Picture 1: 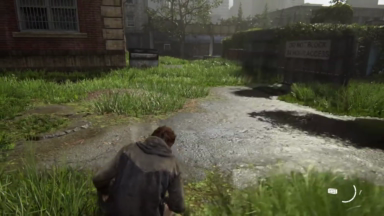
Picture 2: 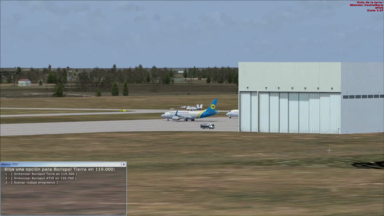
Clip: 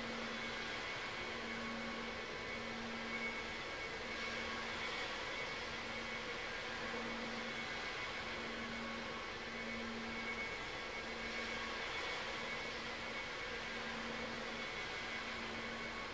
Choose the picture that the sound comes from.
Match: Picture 2